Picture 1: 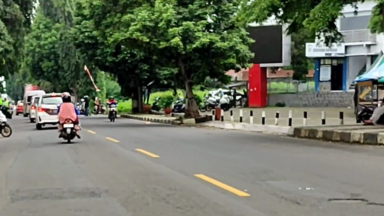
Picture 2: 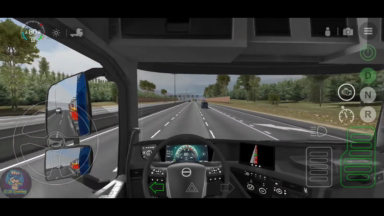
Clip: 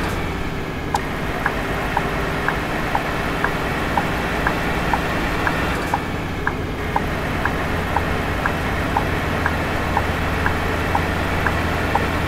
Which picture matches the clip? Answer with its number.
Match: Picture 2